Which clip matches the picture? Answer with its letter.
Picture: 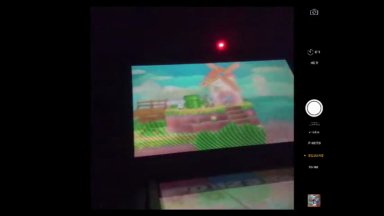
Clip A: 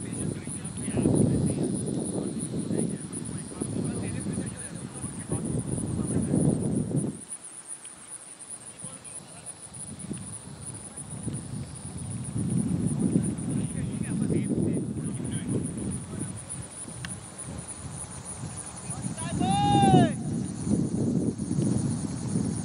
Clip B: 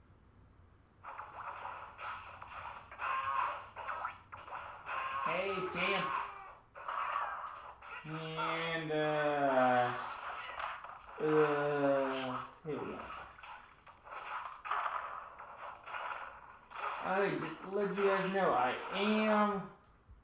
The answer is B